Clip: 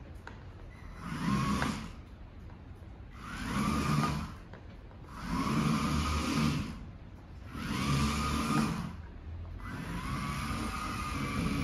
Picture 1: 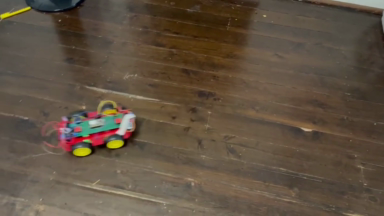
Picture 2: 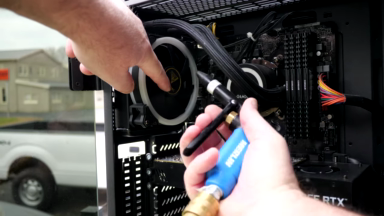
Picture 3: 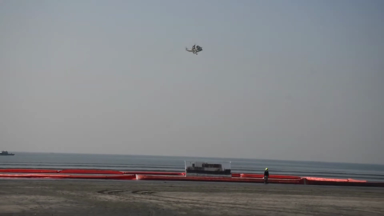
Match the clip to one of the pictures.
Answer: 1